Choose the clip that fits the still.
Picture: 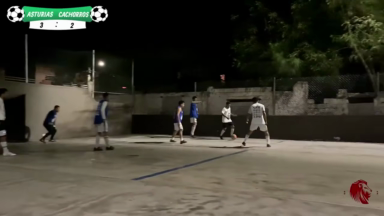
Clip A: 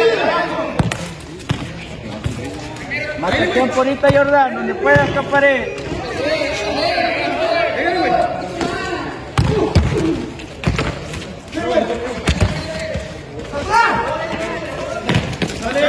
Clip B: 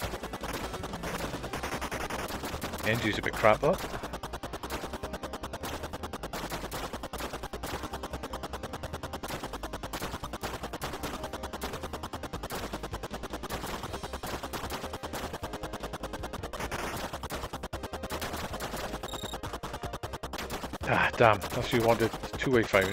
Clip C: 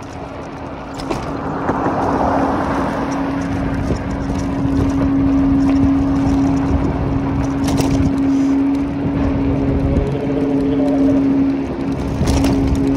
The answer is A